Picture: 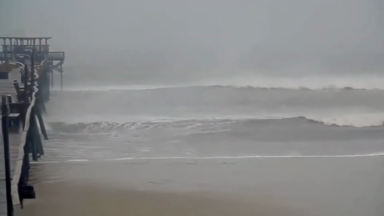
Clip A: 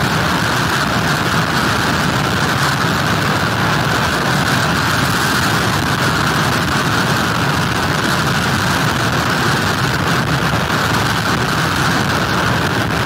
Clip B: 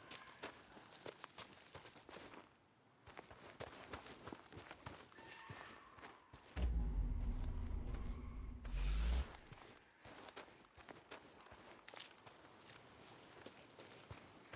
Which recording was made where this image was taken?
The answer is A